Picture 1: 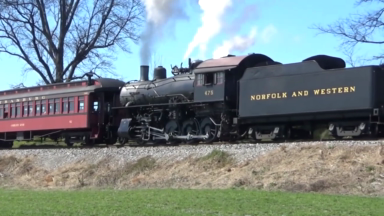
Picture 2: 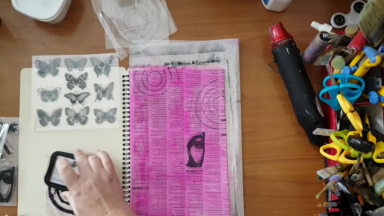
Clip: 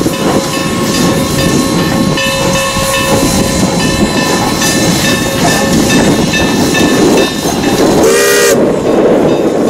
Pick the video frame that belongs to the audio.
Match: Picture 1